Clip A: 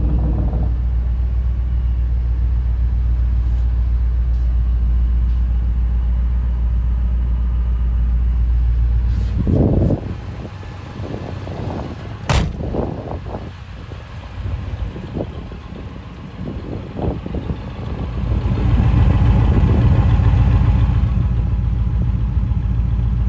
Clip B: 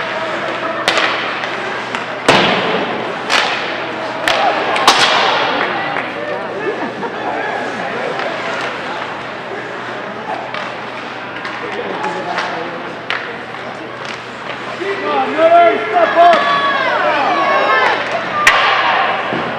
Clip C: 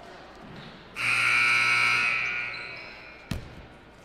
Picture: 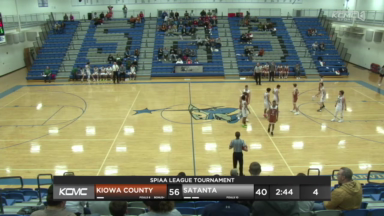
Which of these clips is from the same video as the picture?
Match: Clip C